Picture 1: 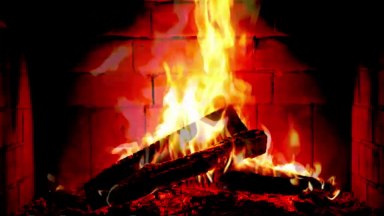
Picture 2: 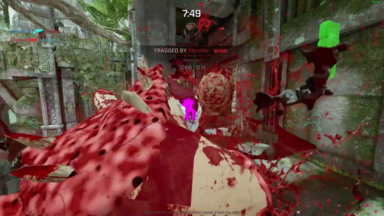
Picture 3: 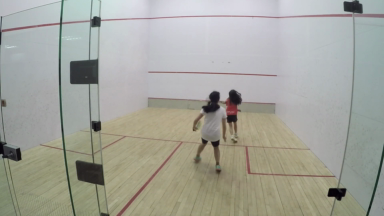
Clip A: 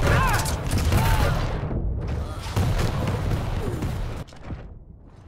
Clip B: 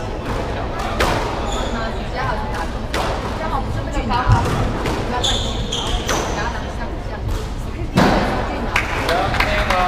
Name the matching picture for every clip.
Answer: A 2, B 3